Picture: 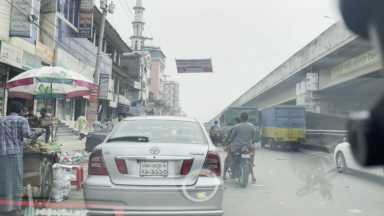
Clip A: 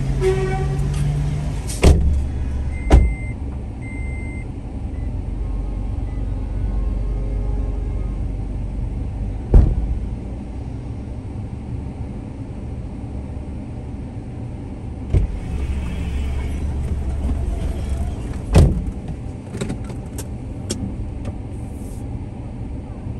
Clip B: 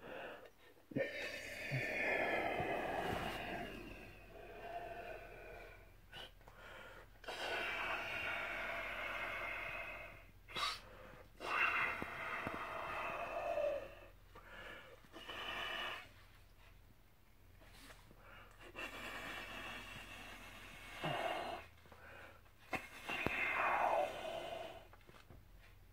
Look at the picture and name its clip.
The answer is A